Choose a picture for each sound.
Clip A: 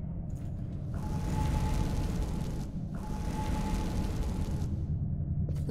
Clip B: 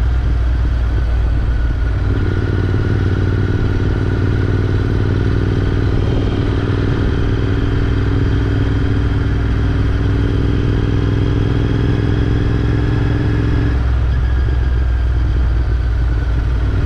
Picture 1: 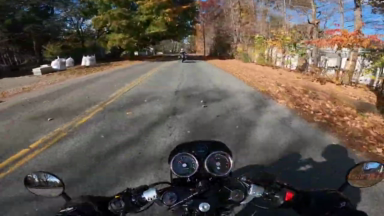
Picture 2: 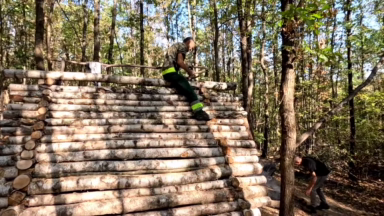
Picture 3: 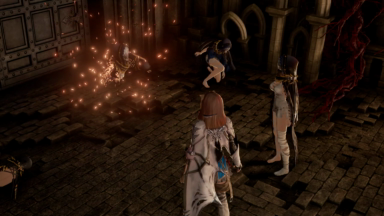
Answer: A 3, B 1